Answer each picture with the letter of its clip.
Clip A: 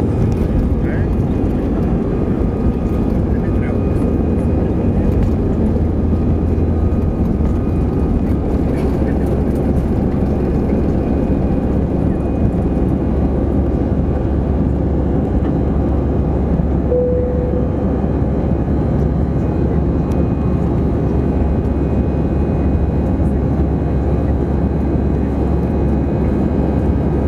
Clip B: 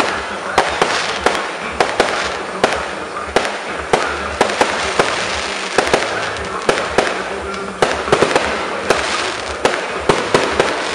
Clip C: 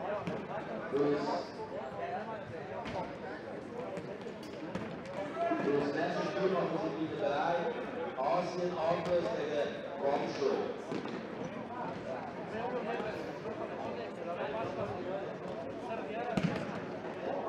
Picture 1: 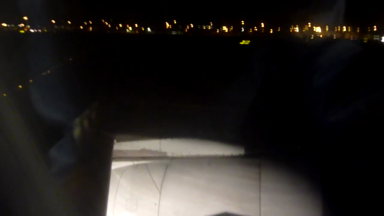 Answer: A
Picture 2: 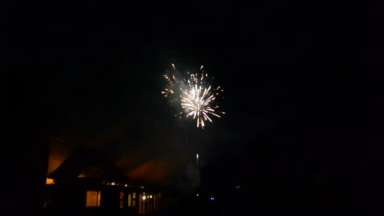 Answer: B